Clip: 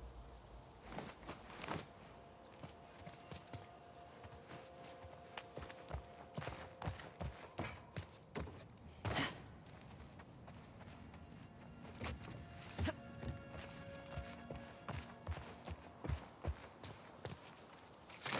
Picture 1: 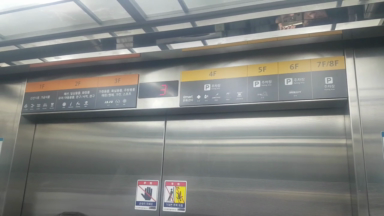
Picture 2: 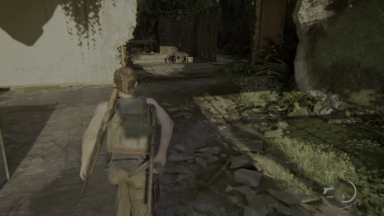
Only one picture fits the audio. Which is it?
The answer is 2